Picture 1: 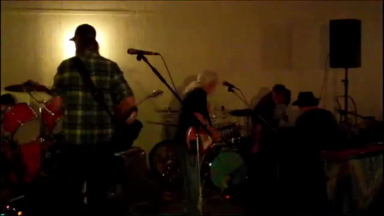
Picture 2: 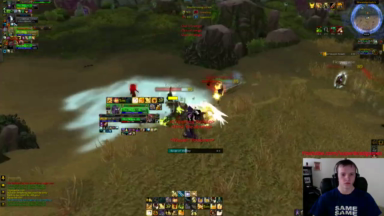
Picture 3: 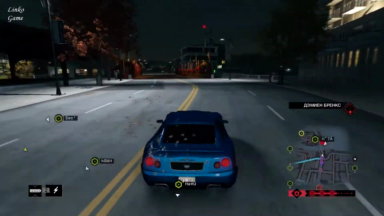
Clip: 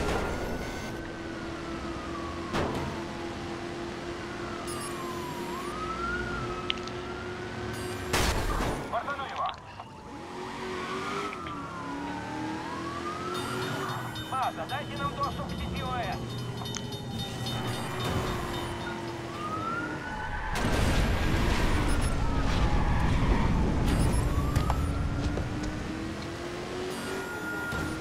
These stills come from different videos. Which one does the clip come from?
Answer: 3